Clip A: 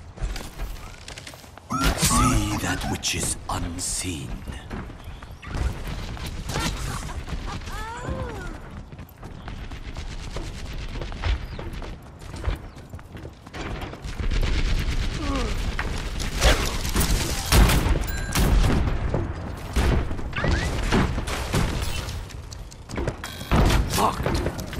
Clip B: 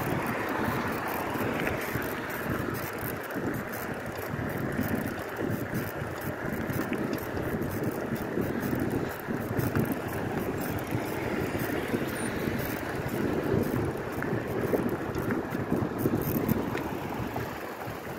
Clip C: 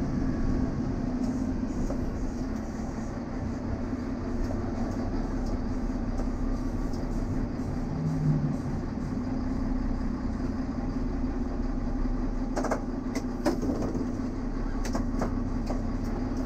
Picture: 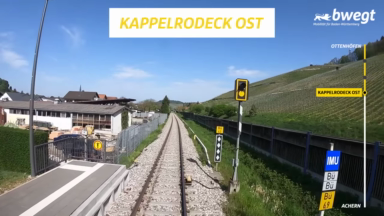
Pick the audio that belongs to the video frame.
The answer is C